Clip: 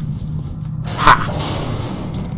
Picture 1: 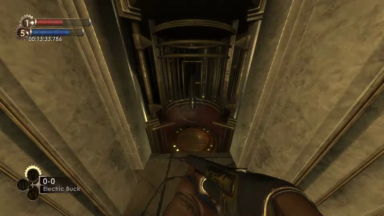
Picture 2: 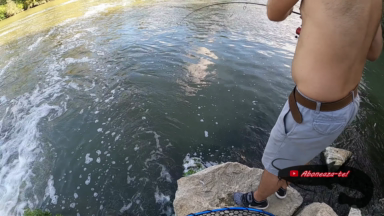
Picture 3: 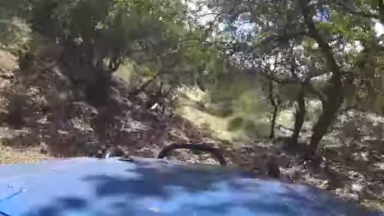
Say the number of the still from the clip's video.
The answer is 1